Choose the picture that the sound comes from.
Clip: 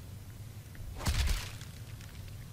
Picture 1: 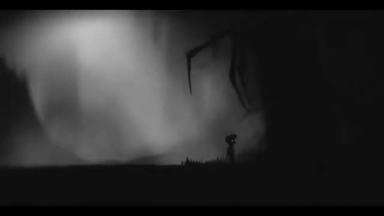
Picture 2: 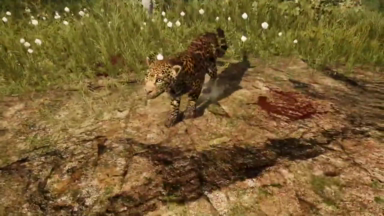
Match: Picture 1